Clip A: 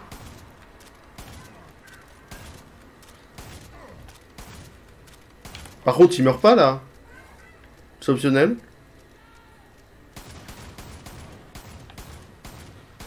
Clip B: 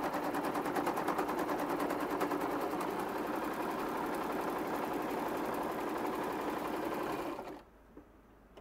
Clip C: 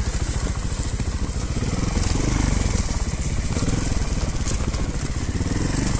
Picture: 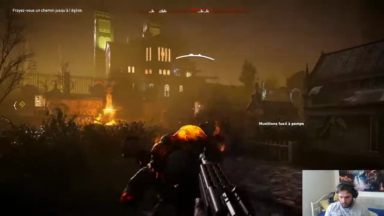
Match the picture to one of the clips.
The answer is A